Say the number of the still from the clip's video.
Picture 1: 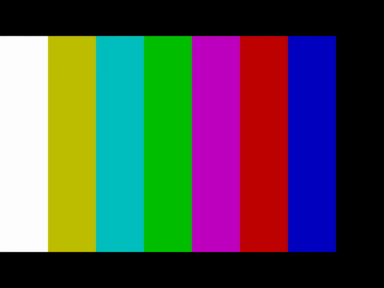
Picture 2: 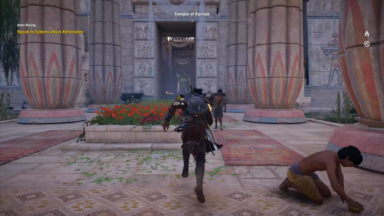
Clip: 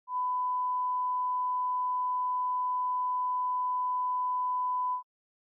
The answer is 1